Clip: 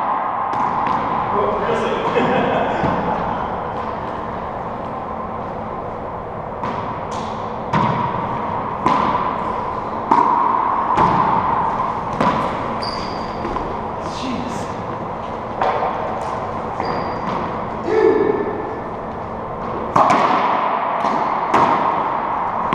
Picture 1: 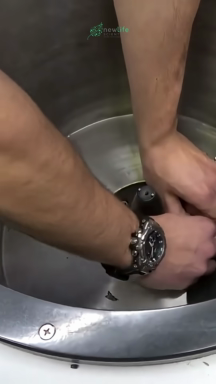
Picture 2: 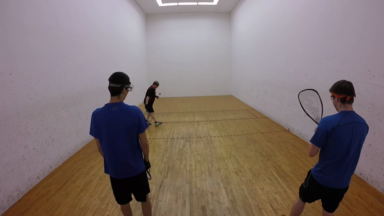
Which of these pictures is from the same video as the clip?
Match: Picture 2